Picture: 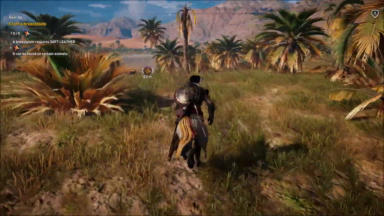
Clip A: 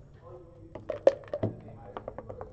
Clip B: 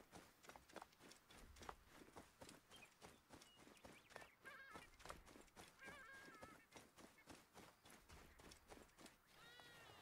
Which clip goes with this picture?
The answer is B